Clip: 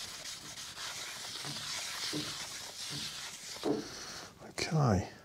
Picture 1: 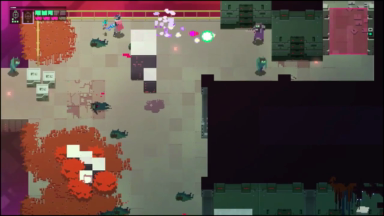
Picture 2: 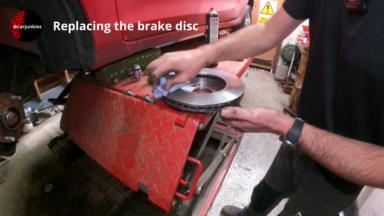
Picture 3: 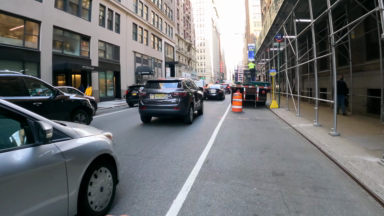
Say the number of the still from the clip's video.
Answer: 2